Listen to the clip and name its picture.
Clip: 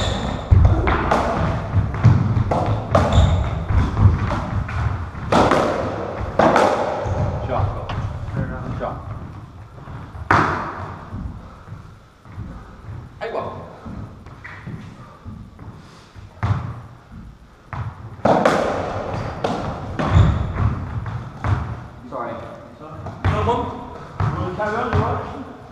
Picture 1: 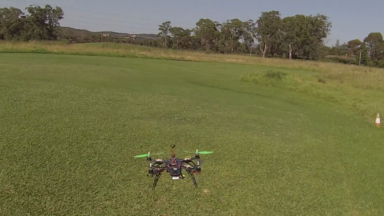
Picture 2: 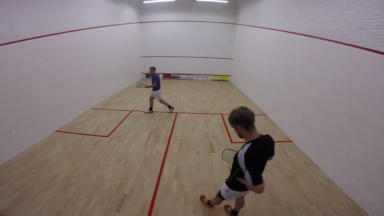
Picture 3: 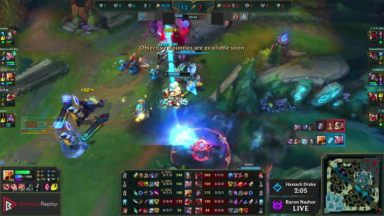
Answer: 2